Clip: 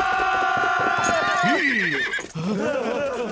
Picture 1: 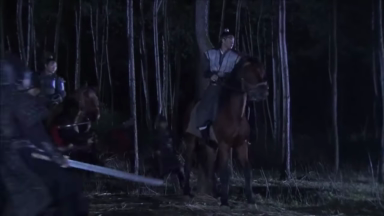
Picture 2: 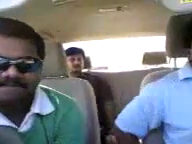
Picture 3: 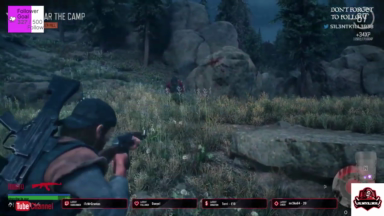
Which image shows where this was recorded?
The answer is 1